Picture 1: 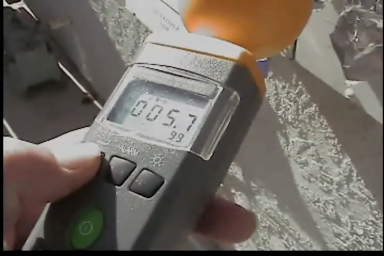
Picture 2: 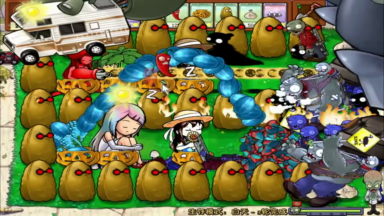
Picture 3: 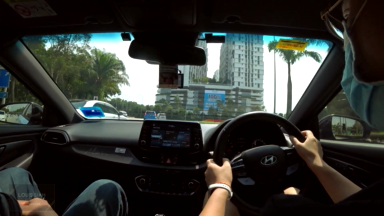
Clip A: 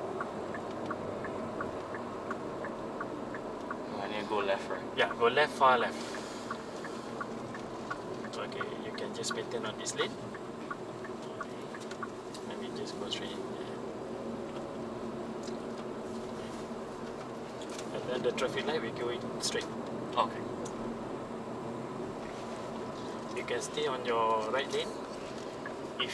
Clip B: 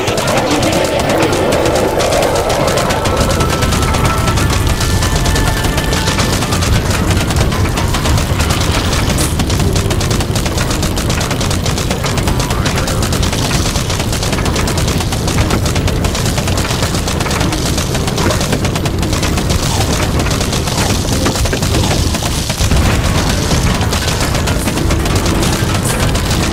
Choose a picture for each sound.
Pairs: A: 3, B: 2